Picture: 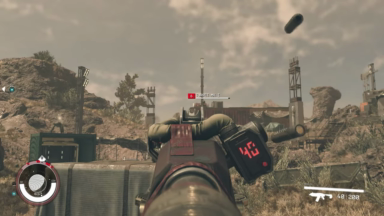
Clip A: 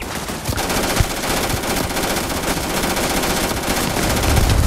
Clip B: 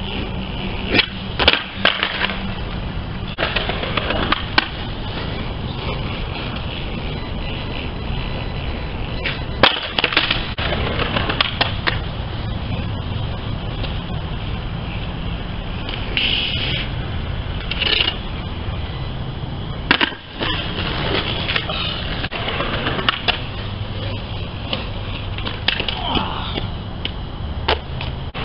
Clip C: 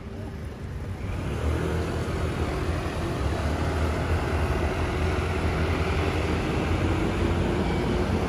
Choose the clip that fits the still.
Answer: A